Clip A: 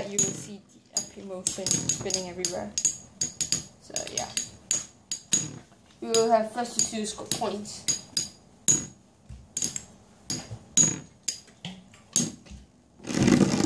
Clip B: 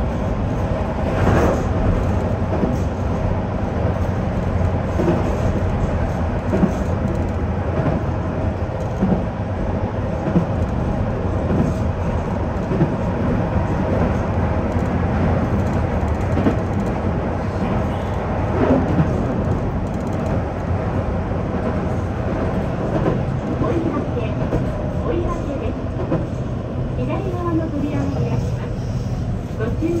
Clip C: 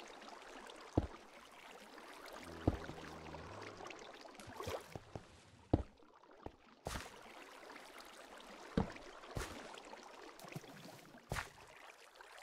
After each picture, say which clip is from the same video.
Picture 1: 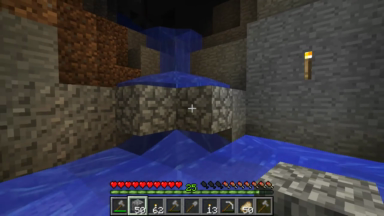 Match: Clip C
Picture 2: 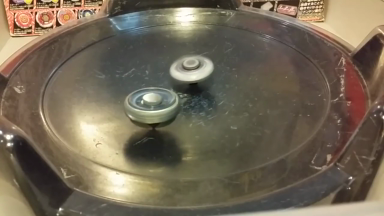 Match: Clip A